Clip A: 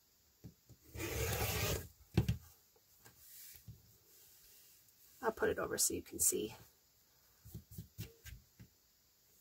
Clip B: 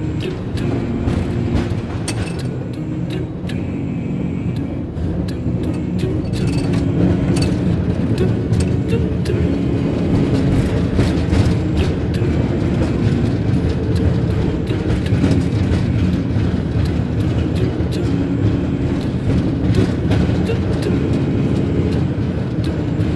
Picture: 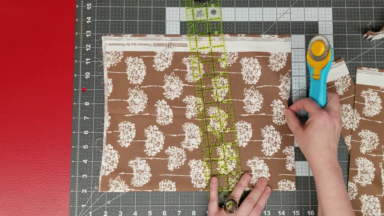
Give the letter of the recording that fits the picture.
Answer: A